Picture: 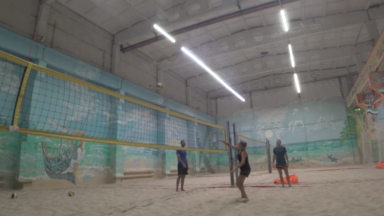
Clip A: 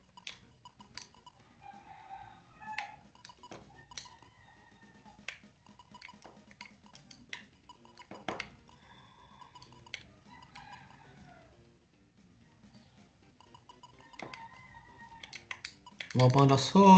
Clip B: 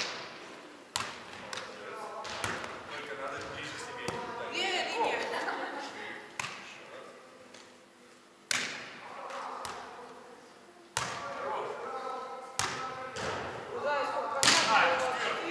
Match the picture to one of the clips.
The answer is B